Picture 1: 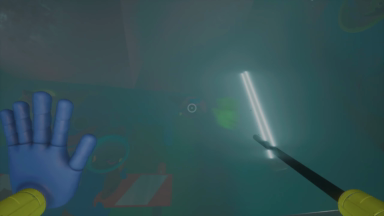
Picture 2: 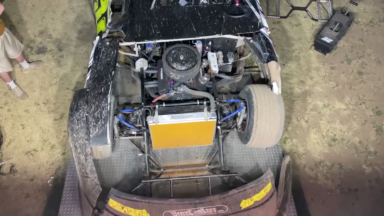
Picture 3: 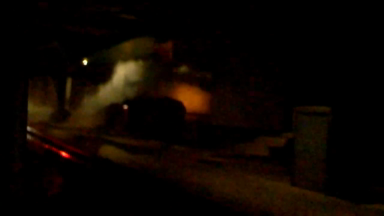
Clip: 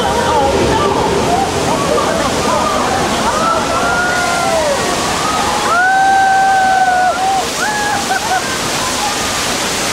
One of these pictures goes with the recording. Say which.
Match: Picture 3